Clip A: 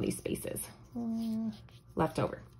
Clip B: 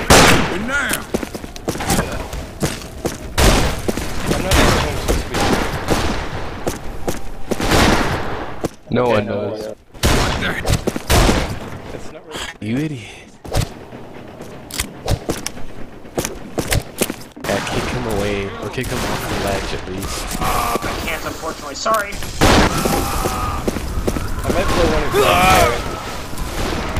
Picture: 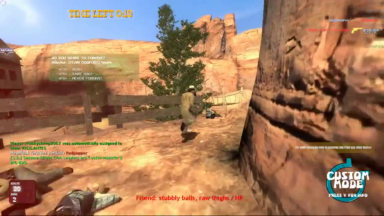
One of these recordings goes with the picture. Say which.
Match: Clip B